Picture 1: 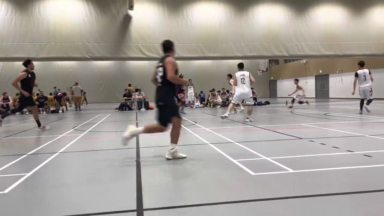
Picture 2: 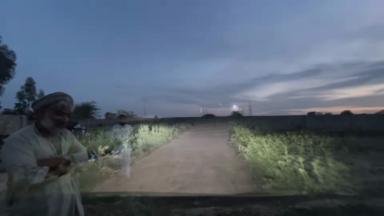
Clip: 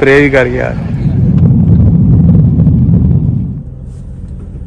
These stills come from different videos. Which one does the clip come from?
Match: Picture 2